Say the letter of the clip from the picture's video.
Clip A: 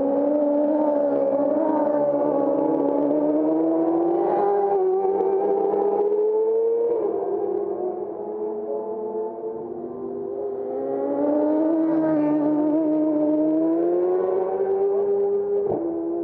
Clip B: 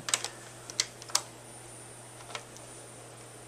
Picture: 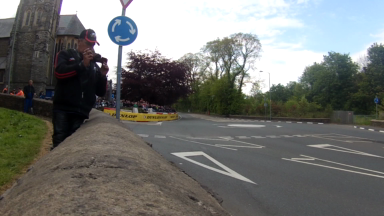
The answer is A